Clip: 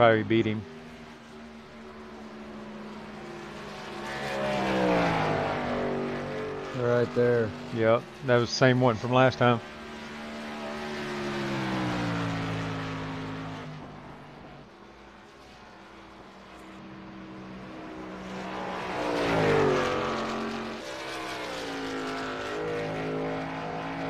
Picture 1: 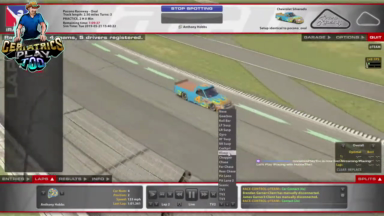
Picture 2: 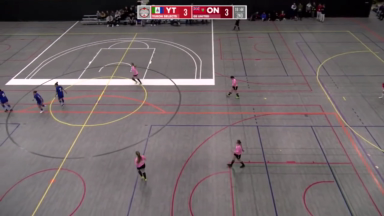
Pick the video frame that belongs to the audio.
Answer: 1